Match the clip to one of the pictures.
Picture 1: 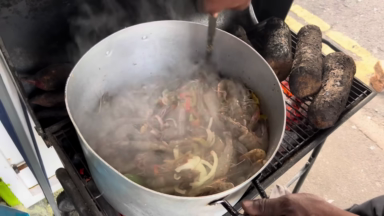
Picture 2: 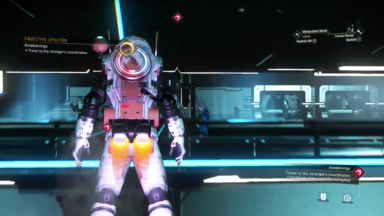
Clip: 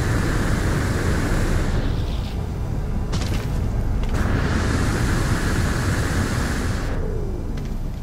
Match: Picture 2